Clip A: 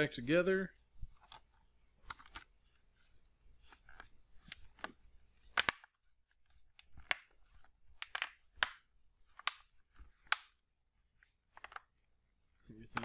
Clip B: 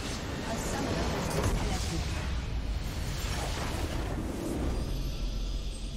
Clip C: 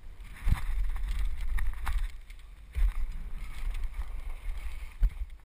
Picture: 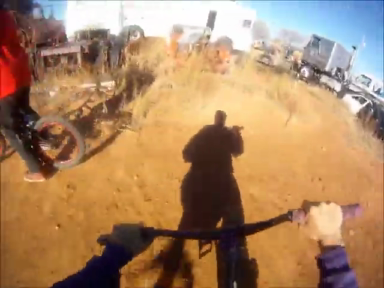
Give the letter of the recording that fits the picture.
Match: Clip C